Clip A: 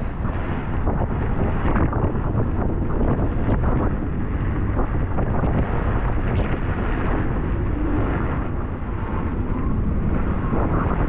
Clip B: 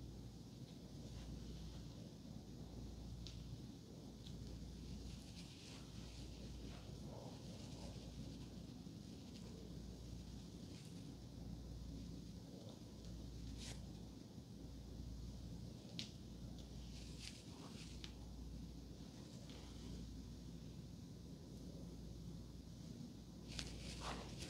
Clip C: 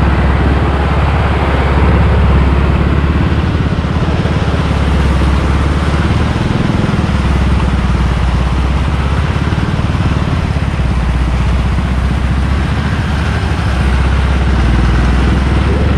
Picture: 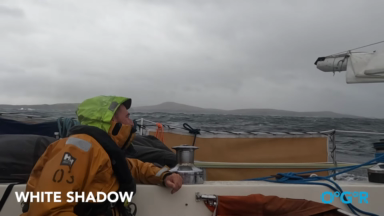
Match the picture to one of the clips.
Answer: A